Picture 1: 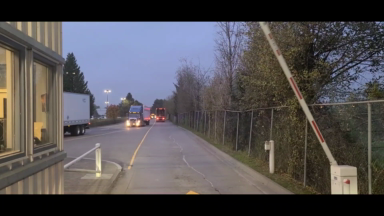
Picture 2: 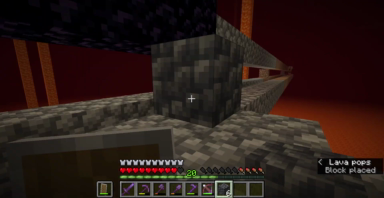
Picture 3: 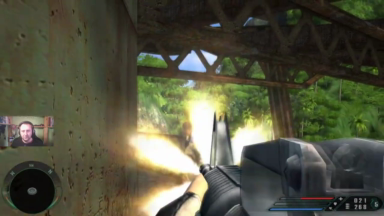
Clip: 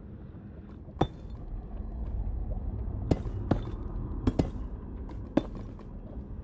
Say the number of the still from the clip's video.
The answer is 2